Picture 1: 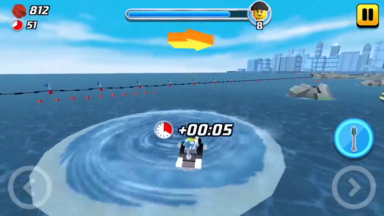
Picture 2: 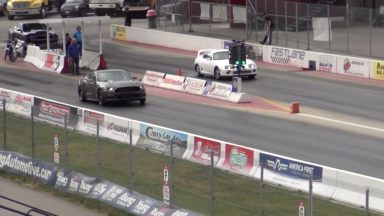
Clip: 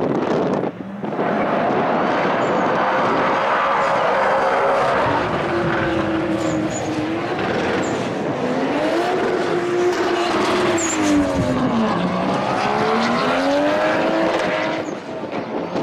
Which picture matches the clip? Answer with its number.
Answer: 2